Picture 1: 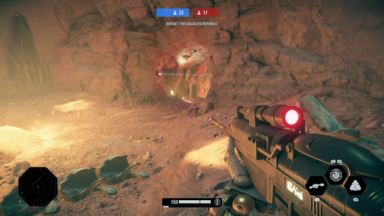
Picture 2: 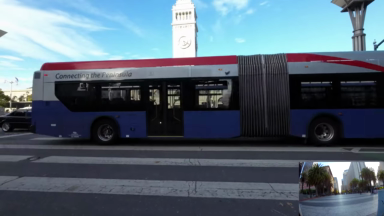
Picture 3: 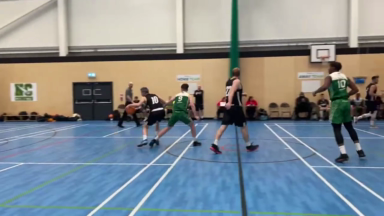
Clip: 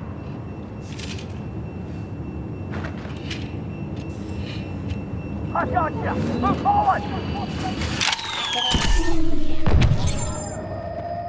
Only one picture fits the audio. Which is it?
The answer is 1